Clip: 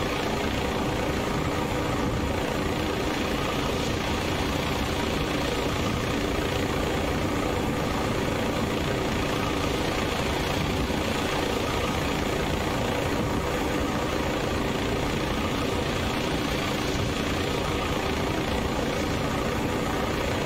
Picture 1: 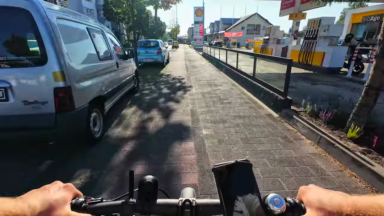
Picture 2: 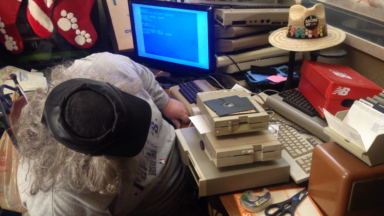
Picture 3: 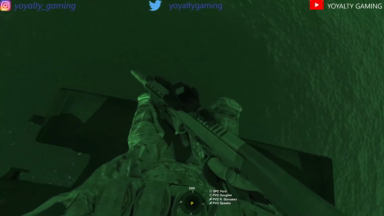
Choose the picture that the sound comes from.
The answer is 3